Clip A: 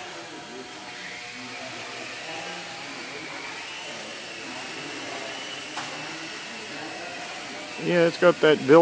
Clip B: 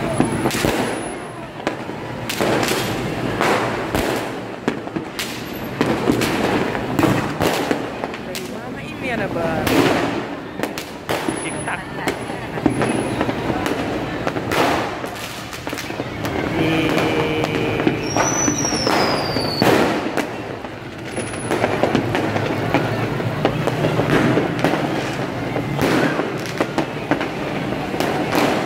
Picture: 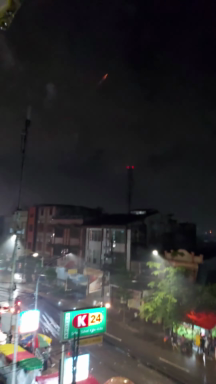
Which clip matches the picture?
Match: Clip B